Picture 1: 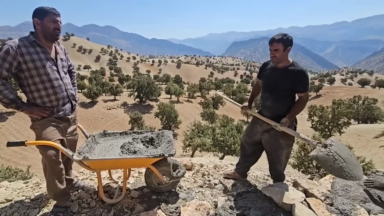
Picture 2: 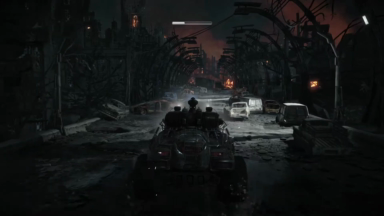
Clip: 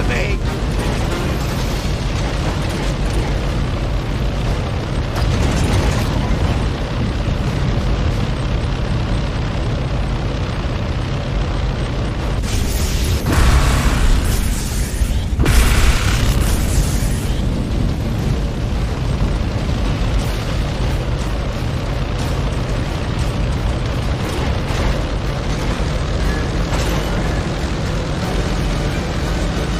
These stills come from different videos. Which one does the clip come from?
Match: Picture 2